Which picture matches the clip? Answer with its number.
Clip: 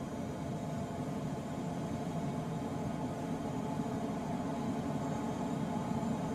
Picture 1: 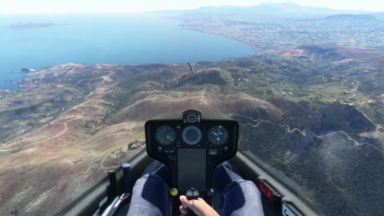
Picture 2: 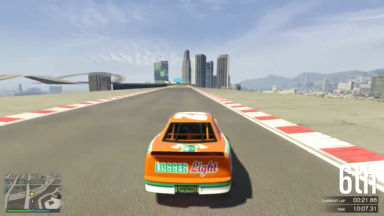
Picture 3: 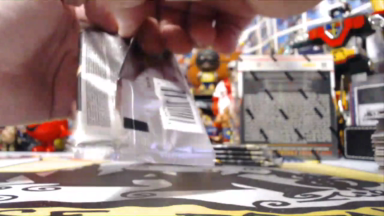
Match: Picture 1